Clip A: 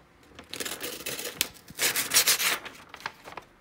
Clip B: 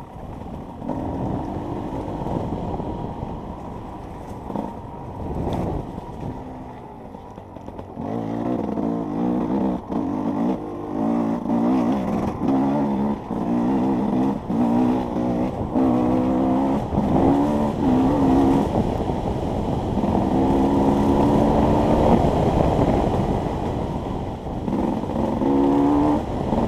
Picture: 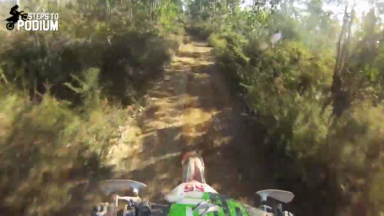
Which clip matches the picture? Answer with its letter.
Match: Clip B